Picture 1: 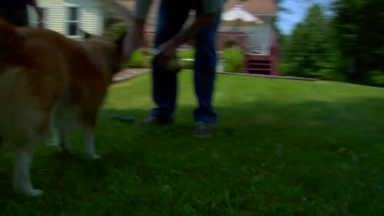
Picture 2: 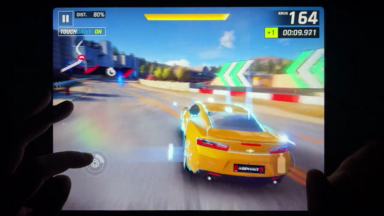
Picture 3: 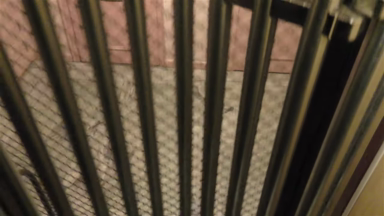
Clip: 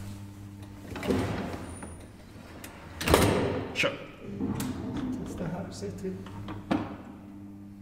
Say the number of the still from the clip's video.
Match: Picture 3